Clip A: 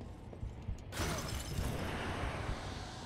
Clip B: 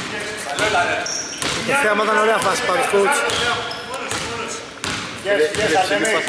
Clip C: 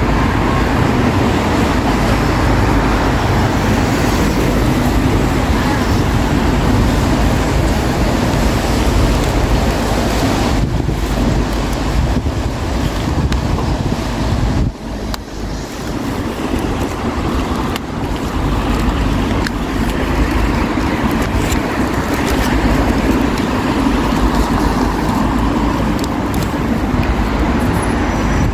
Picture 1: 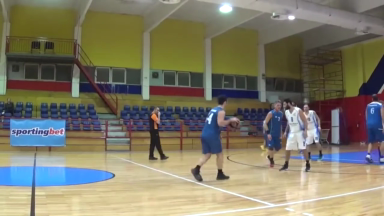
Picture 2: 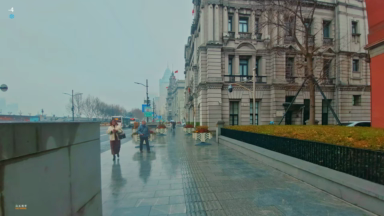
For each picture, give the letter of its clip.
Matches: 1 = B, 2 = C